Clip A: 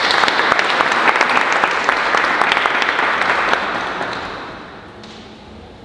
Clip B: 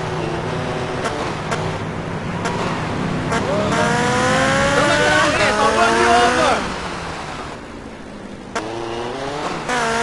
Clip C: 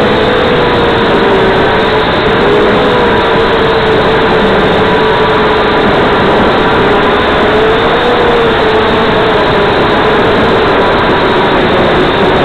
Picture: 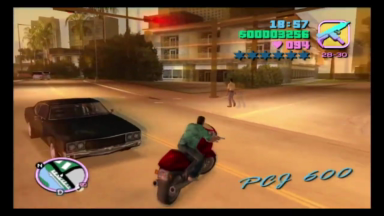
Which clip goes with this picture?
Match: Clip B